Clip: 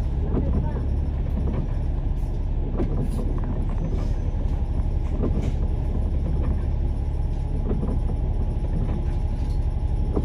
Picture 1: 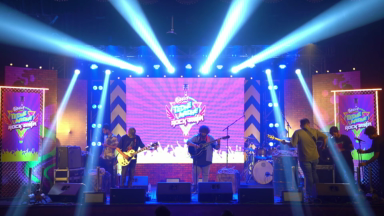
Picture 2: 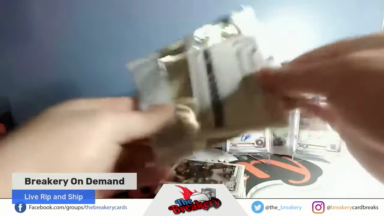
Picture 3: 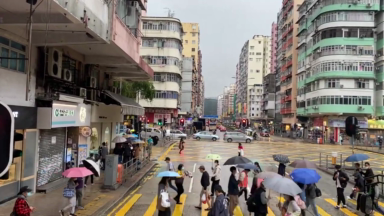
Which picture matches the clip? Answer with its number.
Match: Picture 3